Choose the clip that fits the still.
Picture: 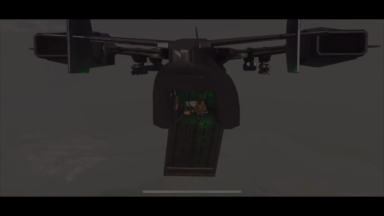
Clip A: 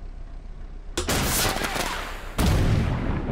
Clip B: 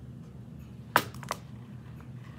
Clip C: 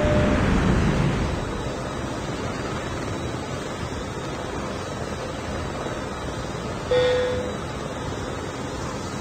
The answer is C